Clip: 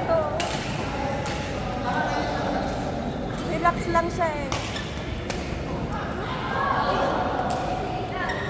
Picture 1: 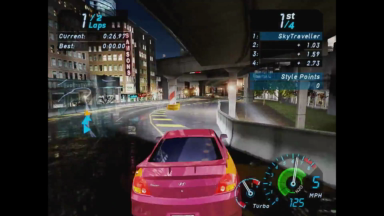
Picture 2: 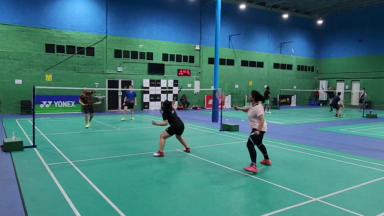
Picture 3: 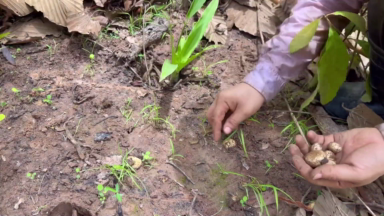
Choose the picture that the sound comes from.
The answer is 2